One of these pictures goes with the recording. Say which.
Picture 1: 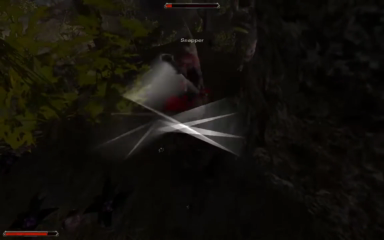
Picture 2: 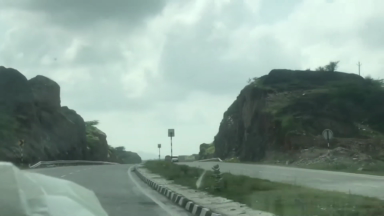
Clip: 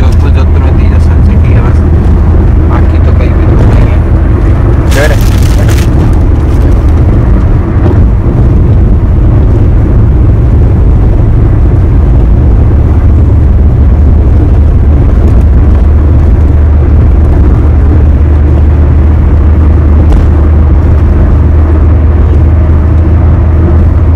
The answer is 2